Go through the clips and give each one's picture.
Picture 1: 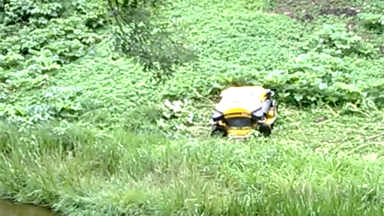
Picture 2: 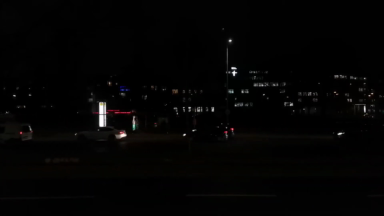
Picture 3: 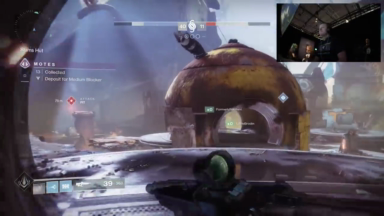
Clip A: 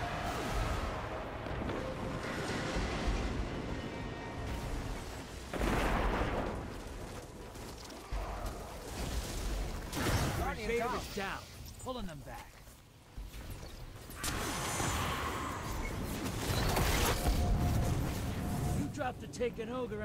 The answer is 3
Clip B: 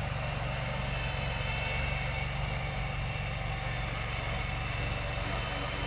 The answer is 1